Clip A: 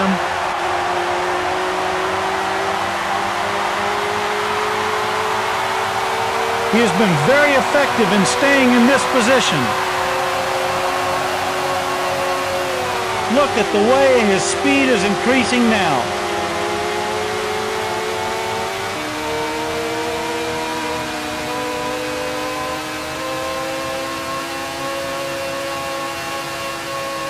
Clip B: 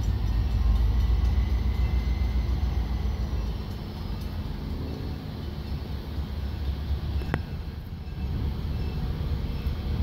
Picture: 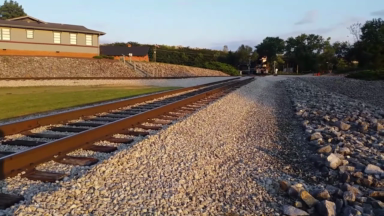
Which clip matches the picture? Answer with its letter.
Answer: B